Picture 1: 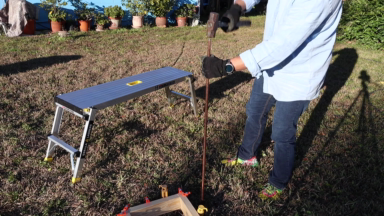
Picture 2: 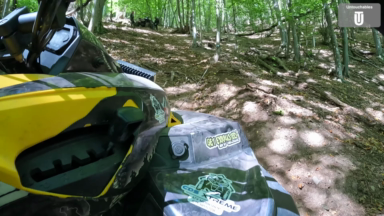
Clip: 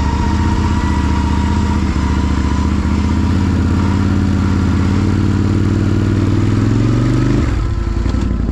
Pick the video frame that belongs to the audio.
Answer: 2